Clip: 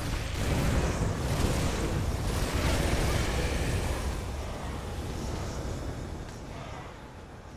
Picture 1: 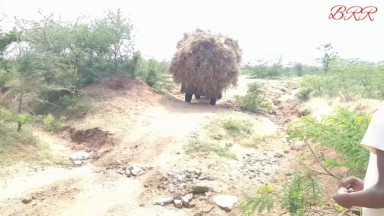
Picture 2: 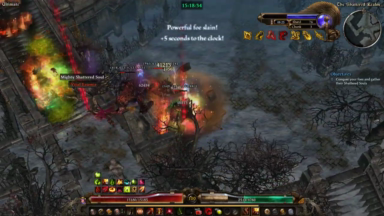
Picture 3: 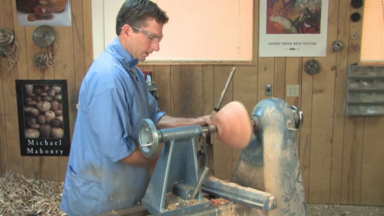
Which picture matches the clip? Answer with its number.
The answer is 2